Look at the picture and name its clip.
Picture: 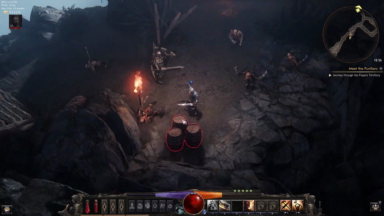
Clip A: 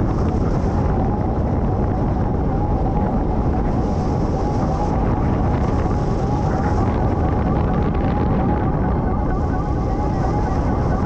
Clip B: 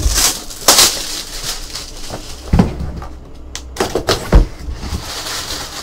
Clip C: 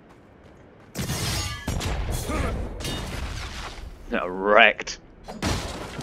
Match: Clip C